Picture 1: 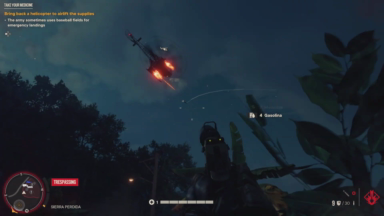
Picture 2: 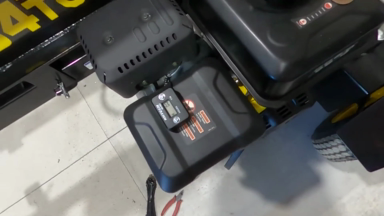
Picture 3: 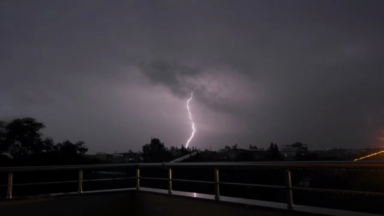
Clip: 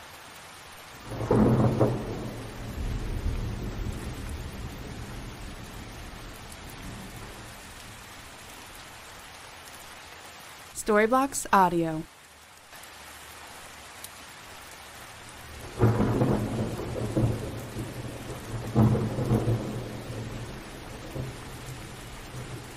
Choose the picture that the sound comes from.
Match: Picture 3